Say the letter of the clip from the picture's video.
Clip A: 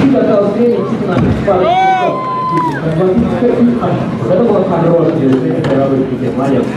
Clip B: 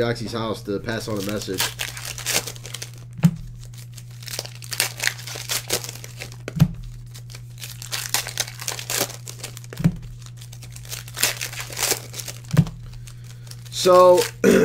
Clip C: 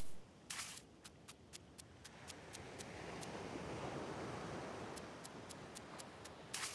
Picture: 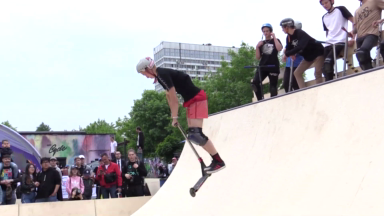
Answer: A